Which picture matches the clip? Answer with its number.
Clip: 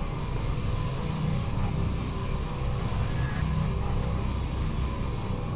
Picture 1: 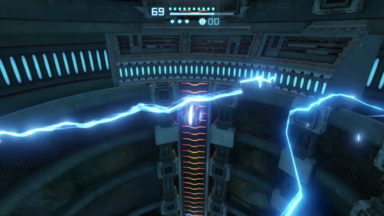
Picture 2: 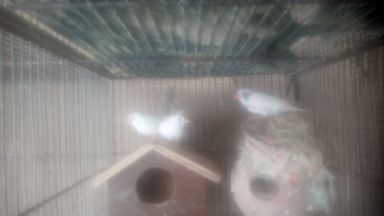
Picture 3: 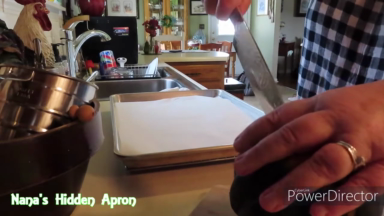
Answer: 1